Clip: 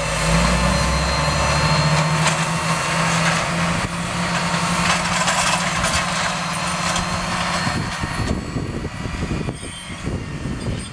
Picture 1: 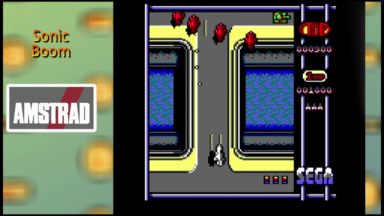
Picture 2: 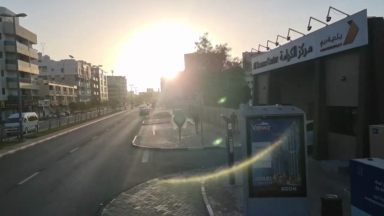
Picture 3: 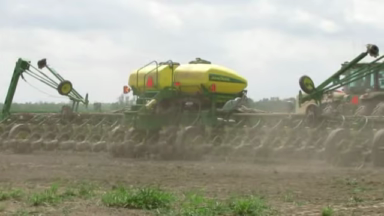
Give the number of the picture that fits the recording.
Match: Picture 3